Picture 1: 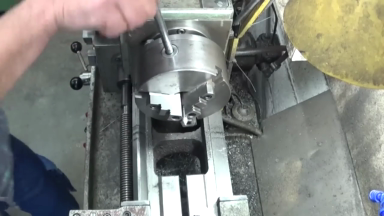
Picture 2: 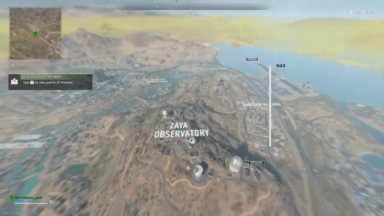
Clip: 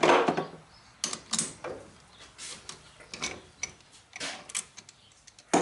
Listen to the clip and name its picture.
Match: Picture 1